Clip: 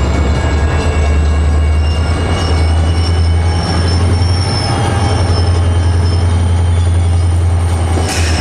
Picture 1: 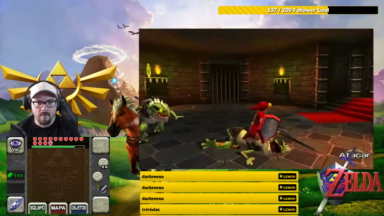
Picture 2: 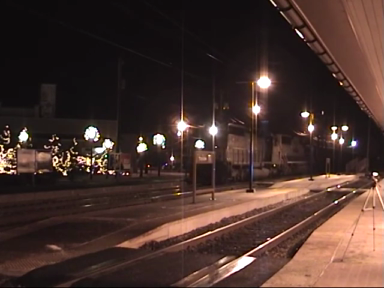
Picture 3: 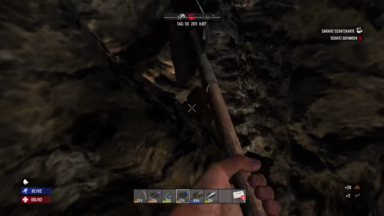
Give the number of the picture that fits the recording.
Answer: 2